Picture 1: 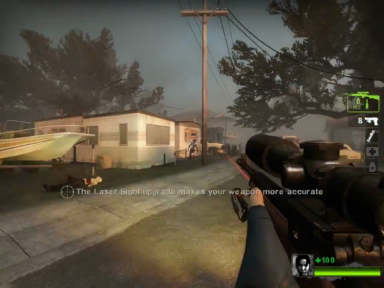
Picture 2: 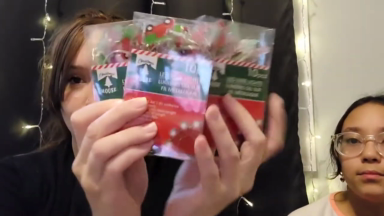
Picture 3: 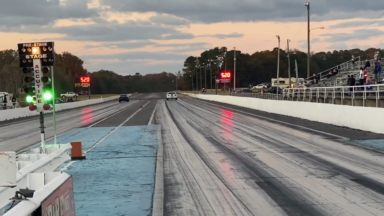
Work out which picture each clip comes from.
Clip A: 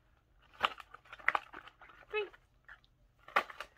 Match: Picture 2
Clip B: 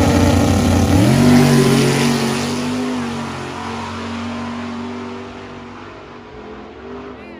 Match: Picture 3